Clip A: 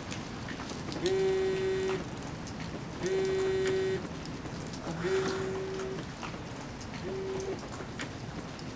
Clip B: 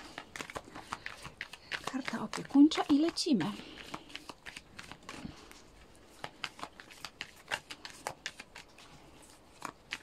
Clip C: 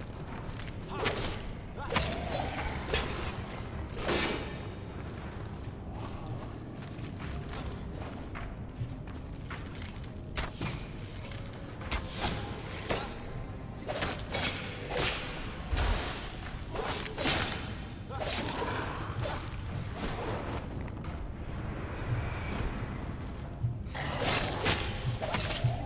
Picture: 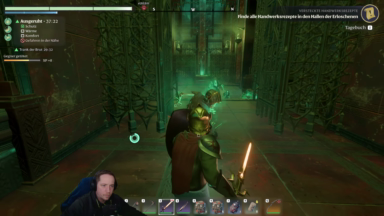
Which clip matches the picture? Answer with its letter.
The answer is C